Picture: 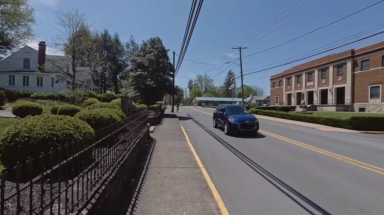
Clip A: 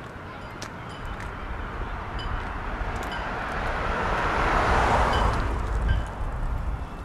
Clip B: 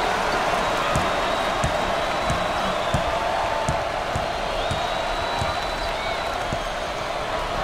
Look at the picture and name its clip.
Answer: A